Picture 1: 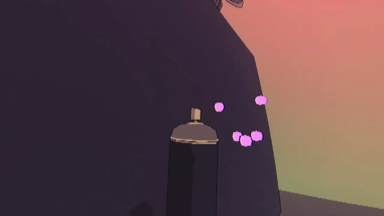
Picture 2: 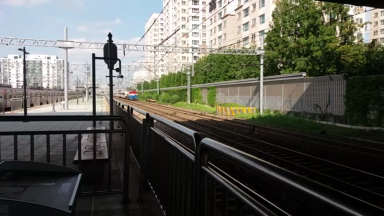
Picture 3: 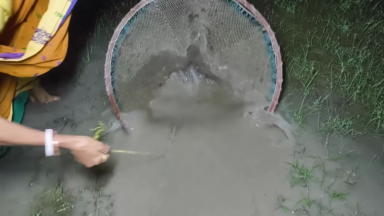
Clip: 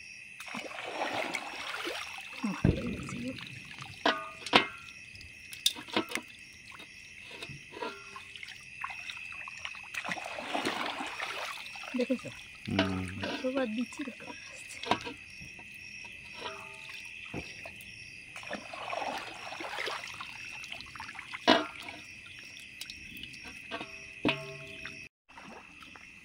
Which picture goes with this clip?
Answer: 3